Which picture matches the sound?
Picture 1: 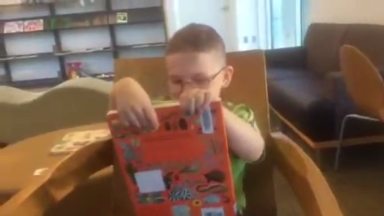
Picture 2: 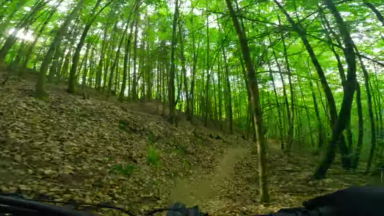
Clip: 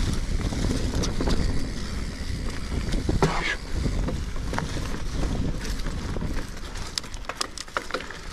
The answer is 2